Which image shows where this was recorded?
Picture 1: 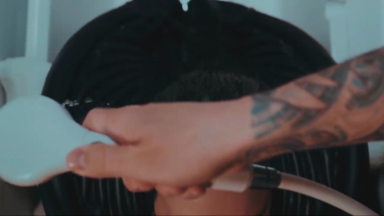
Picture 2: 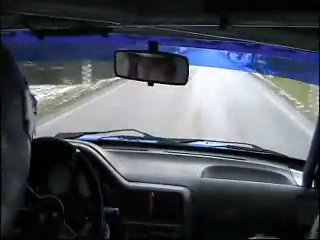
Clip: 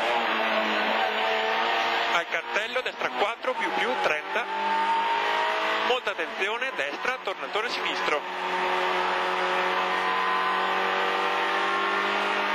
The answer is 2